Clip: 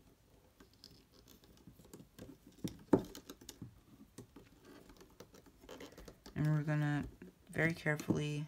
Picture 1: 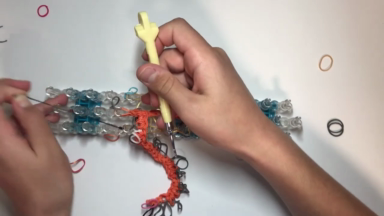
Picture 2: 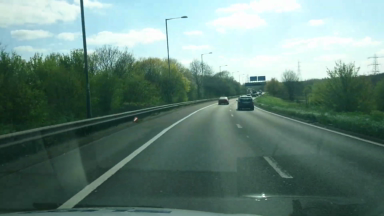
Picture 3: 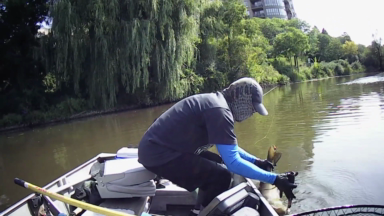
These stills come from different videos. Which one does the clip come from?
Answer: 1